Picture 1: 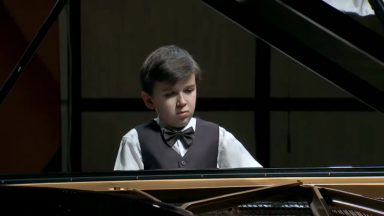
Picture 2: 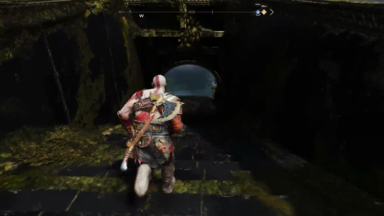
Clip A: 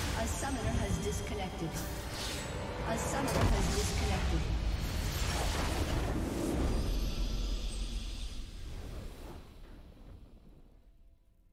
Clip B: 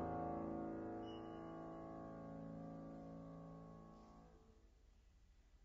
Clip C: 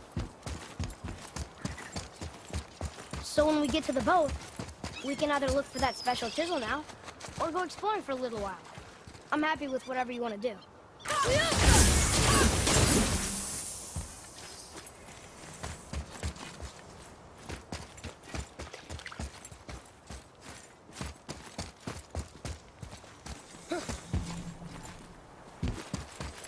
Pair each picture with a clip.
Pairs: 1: B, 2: C